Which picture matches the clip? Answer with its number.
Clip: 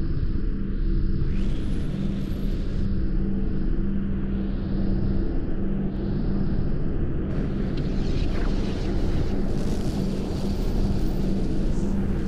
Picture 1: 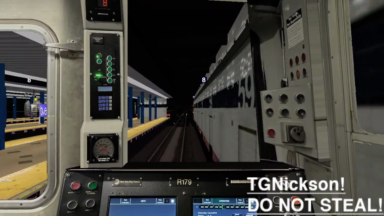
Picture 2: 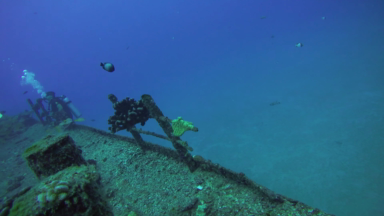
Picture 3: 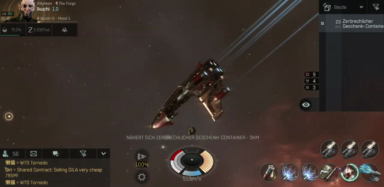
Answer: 3